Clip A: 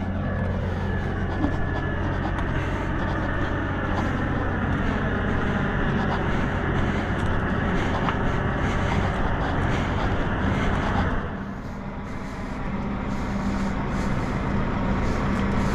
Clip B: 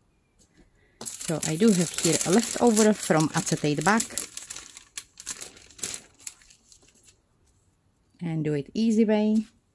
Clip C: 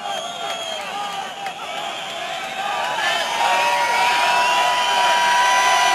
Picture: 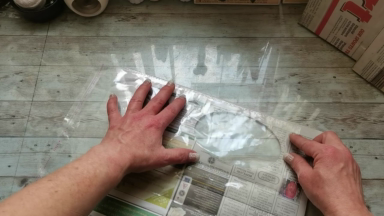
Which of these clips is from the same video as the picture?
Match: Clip B